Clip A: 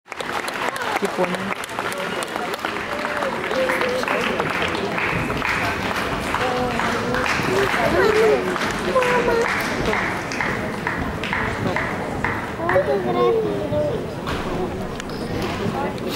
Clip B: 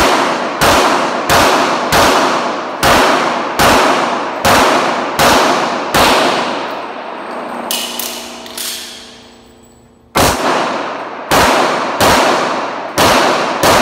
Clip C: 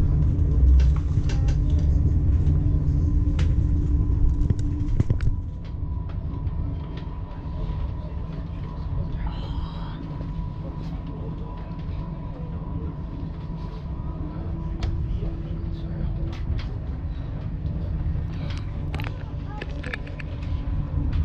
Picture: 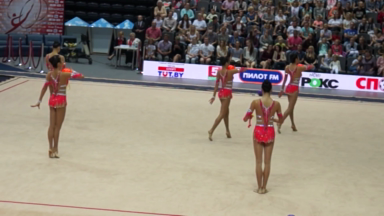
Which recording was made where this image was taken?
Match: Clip A